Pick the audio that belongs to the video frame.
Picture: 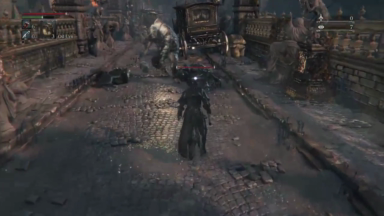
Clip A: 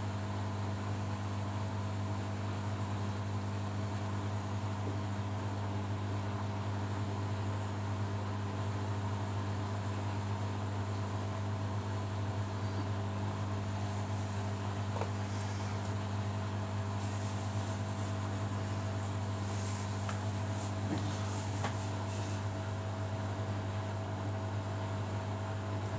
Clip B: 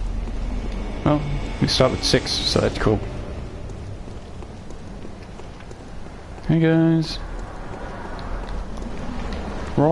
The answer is B